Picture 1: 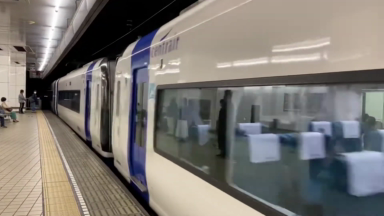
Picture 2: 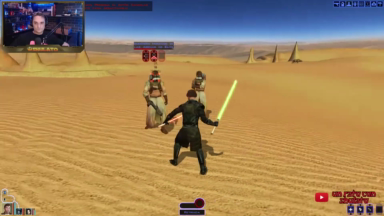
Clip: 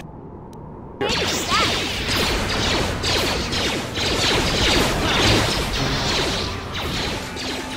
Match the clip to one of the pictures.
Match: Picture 2